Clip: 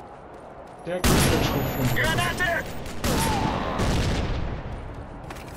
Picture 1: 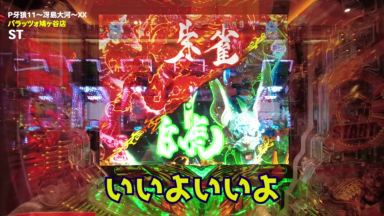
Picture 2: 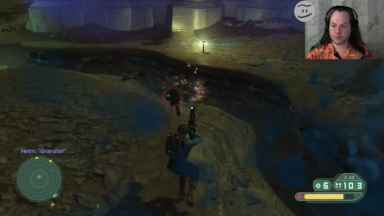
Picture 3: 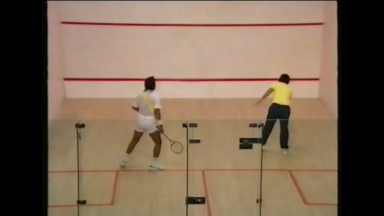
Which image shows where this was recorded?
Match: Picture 2